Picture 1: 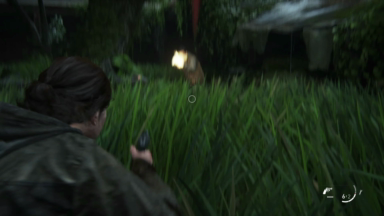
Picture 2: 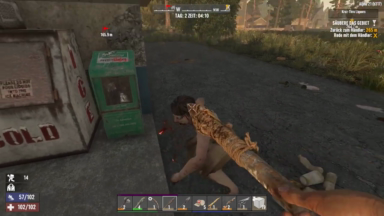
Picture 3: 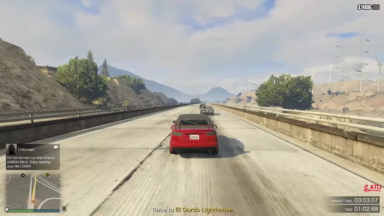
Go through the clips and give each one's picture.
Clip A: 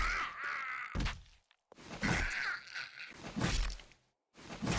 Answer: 2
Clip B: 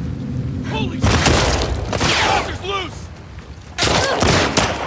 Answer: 1